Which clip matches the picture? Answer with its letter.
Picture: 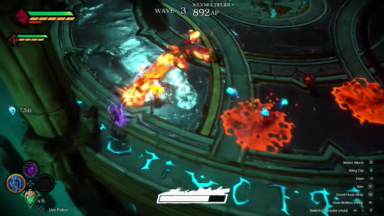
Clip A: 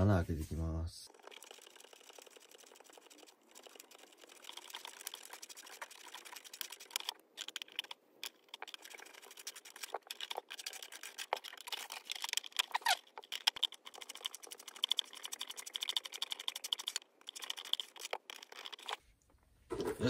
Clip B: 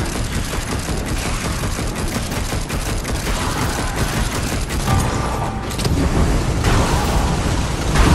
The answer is B